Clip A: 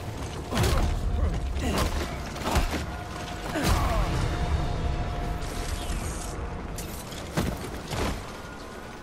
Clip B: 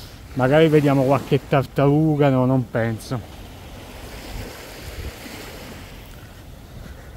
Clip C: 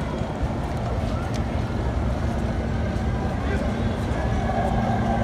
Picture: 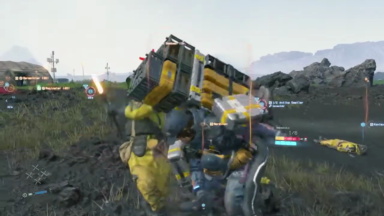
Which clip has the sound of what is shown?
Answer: A